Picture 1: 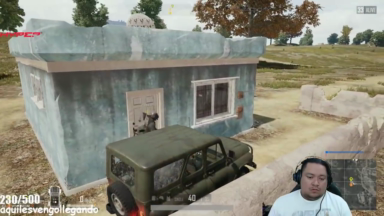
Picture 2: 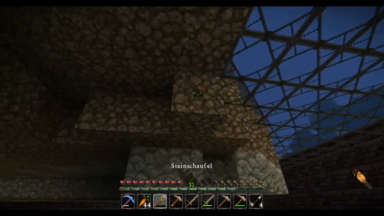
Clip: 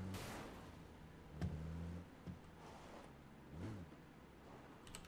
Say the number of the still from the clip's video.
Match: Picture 1